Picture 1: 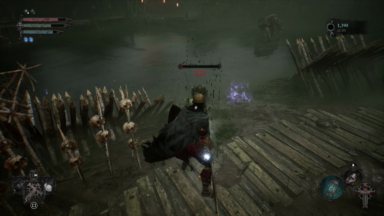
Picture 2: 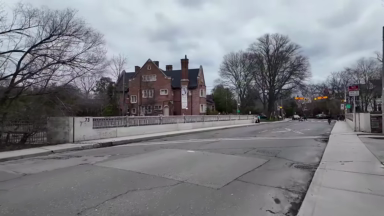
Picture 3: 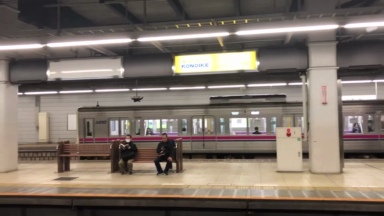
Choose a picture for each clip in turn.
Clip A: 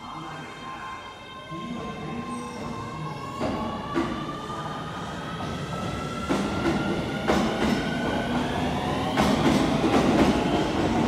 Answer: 3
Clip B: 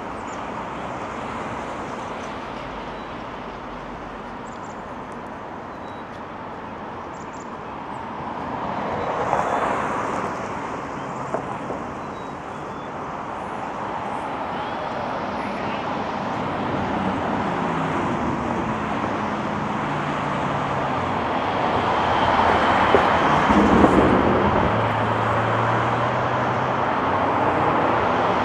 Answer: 2